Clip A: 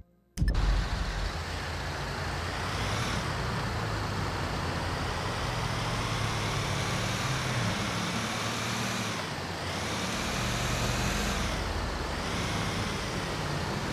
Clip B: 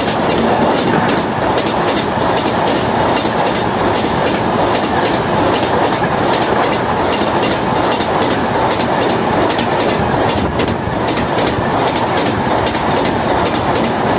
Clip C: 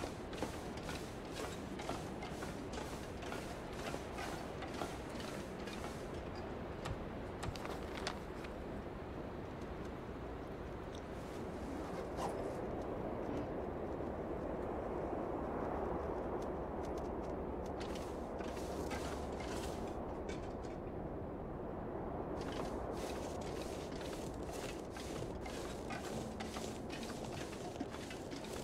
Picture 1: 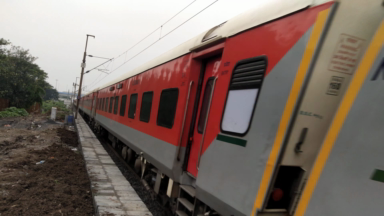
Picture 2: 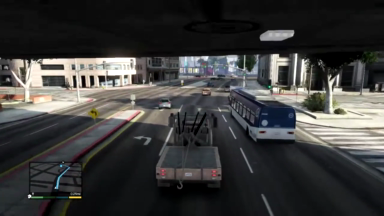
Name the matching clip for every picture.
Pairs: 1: B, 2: A